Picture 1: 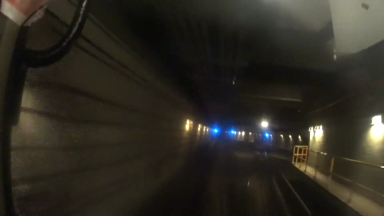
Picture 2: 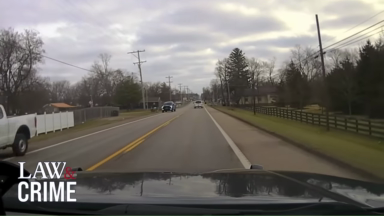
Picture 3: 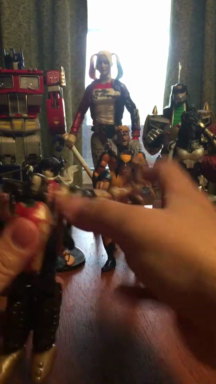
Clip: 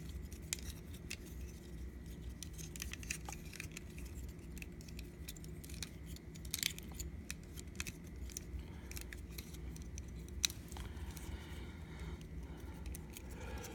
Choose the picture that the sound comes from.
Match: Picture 3